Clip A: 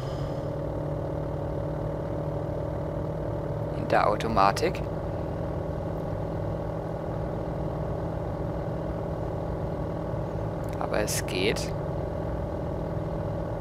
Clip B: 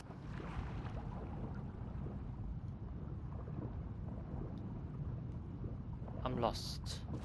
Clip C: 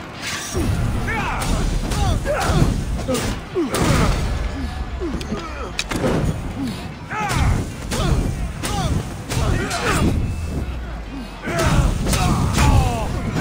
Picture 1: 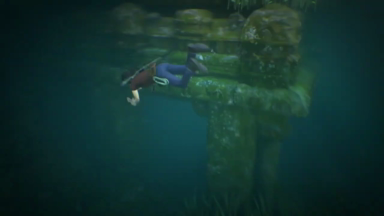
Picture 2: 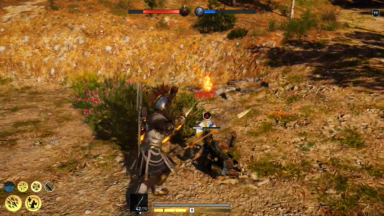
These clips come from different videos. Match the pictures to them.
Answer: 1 B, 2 C